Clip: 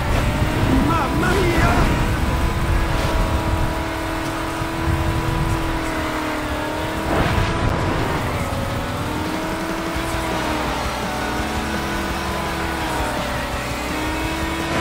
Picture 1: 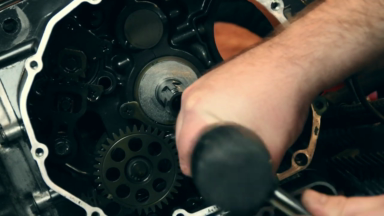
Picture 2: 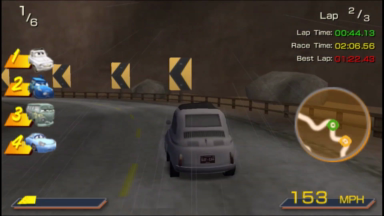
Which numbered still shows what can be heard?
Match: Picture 2